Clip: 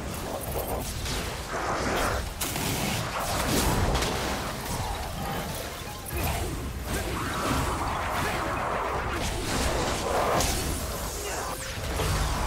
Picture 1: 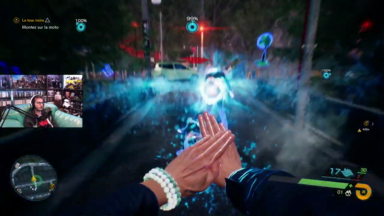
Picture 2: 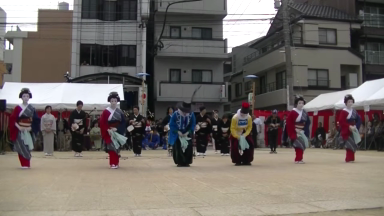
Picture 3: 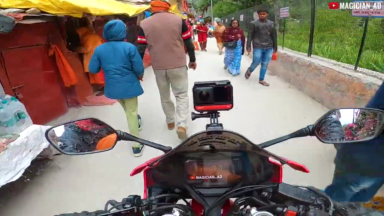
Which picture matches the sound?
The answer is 1